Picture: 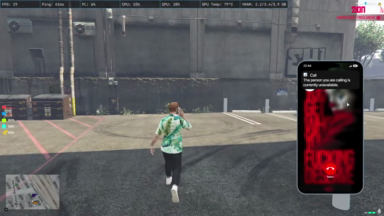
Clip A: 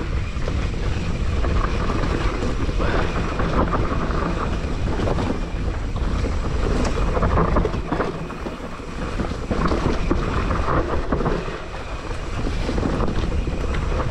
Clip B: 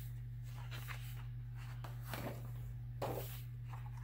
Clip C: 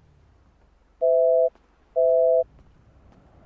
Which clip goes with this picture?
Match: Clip C